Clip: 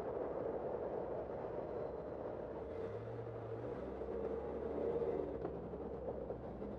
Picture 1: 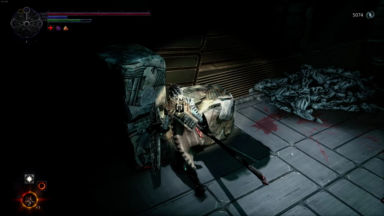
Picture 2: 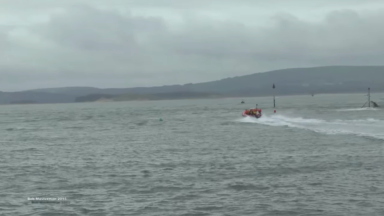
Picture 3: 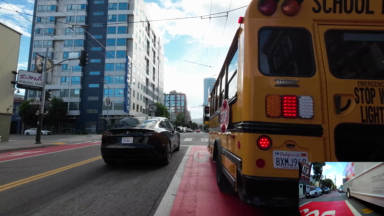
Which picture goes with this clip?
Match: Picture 3